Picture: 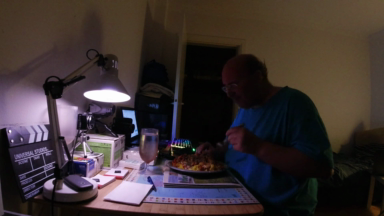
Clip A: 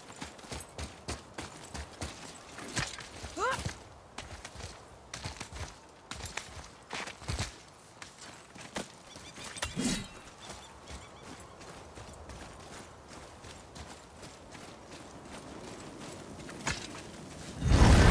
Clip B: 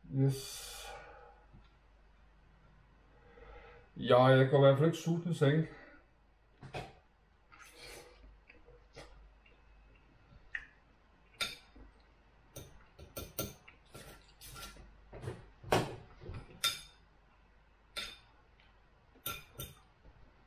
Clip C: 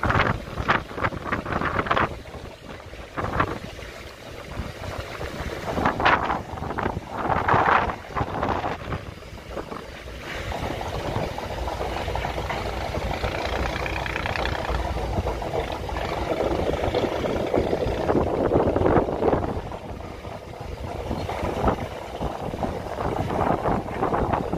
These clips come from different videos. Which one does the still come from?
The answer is B